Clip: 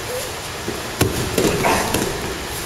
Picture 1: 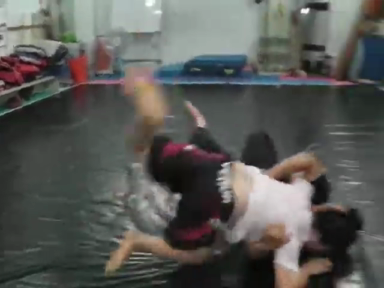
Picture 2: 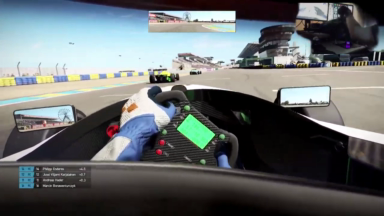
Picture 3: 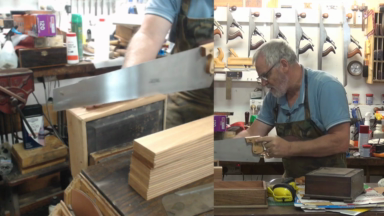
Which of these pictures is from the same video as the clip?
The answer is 1